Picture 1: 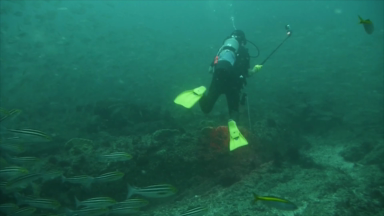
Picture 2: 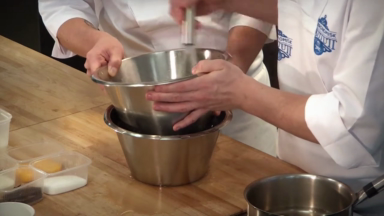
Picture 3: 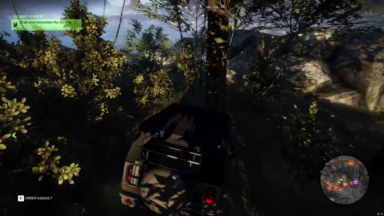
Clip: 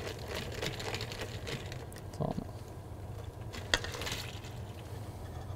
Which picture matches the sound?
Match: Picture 2